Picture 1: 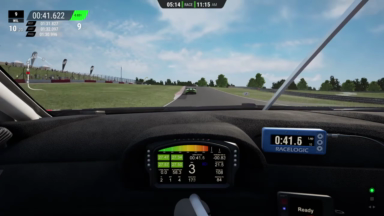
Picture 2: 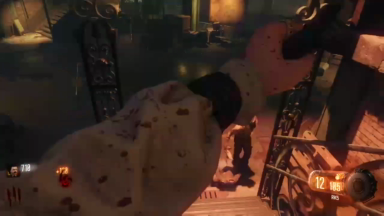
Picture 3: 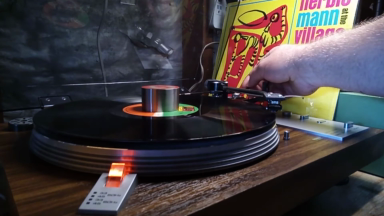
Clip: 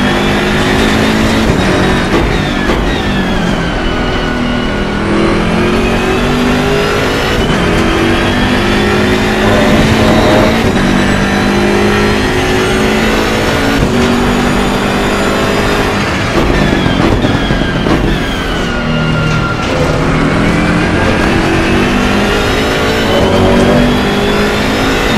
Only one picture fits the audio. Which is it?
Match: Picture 1